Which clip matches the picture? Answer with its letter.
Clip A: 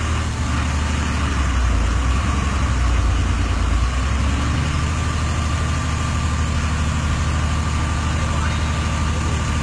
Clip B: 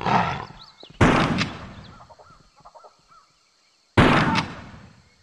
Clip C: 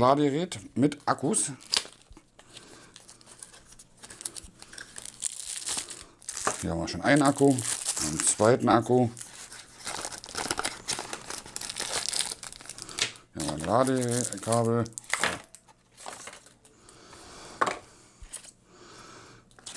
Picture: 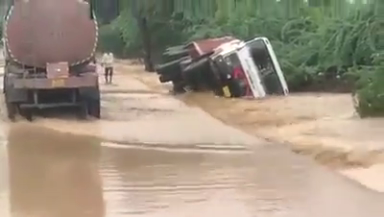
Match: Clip A